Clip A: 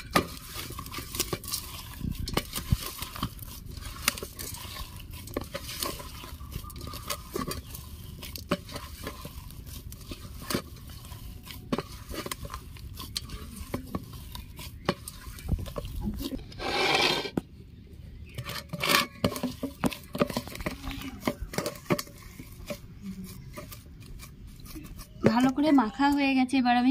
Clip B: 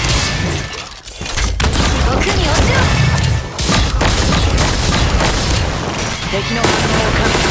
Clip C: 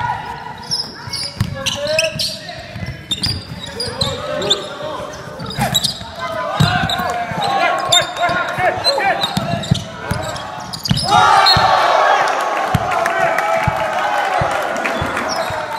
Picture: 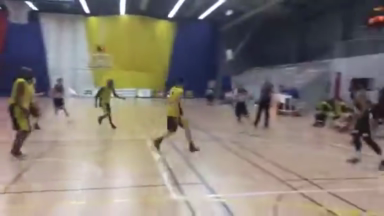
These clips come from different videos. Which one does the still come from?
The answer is C